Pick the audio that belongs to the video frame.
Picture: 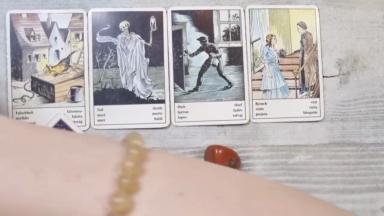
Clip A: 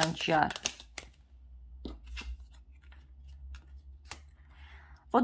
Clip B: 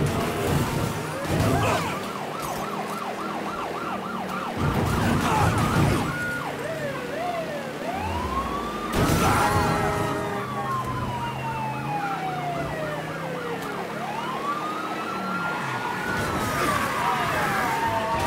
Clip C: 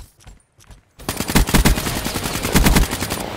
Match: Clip A